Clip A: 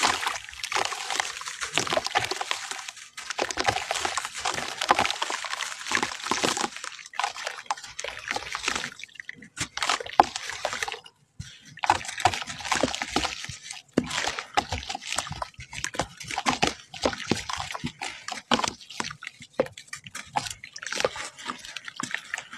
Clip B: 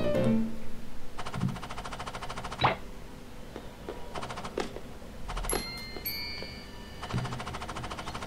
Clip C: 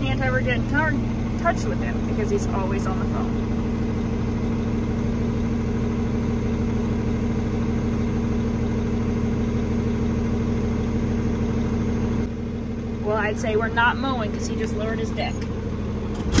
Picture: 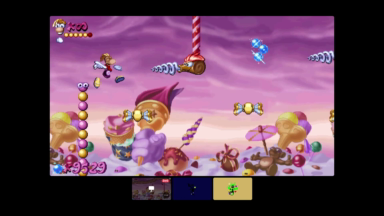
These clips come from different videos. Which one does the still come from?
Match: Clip B